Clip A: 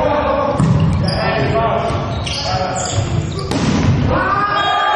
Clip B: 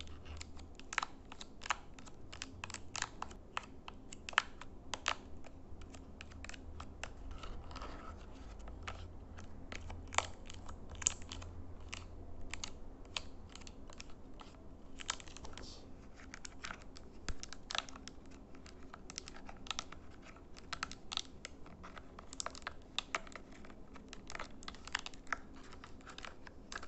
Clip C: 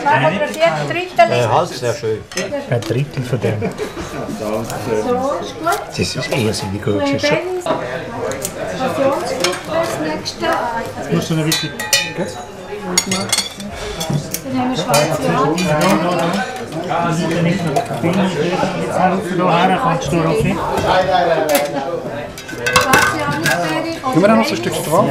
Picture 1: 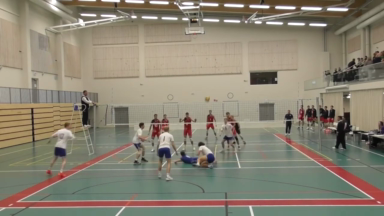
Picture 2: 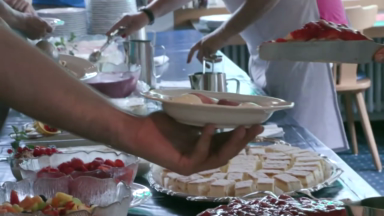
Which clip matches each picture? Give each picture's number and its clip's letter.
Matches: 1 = A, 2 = C